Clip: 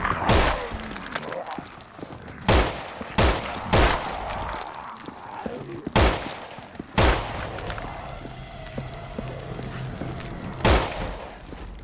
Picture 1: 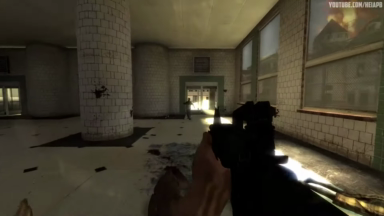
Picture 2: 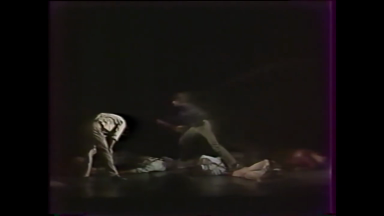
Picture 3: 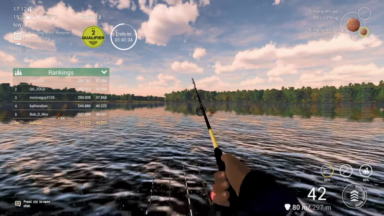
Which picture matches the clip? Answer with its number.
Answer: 1